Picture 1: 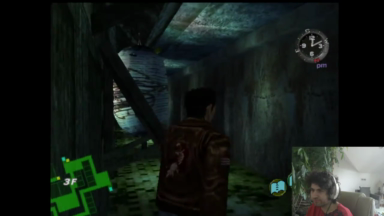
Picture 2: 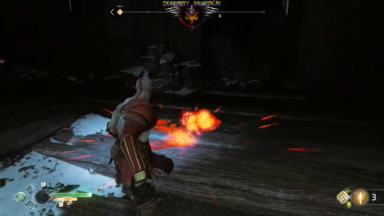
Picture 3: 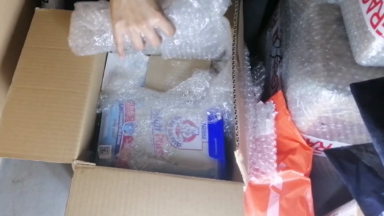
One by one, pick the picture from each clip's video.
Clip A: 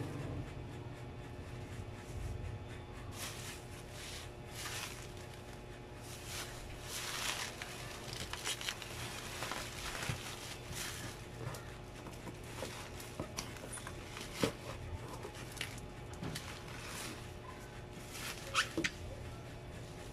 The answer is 3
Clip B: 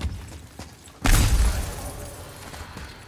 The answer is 2